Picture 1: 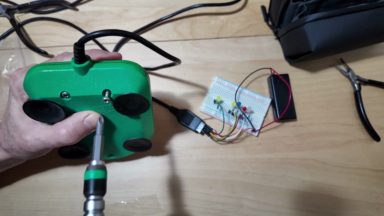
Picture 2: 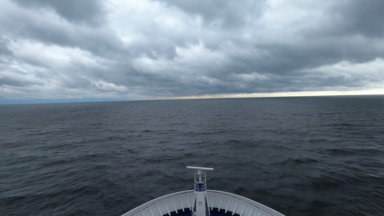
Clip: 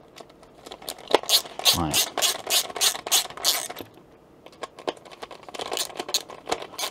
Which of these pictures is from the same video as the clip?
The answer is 1